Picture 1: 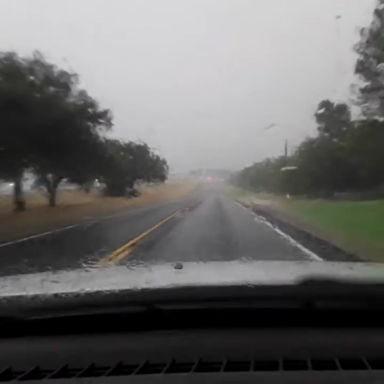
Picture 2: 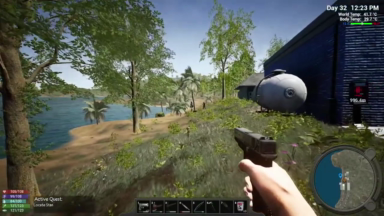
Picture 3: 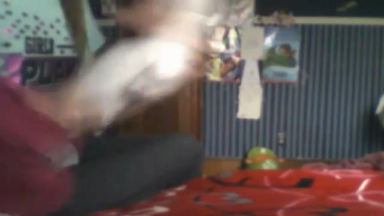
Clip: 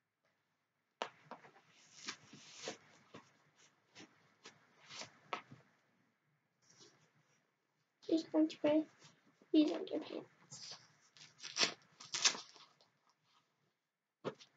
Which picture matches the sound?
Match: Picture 3